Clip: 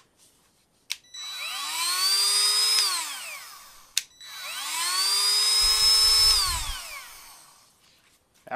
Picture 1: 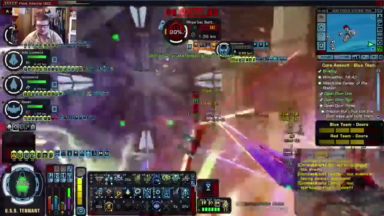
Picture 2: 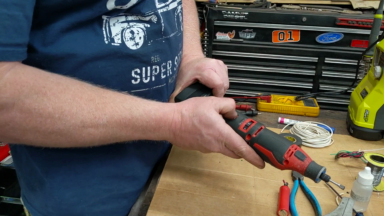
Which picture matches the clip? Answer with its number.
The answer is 2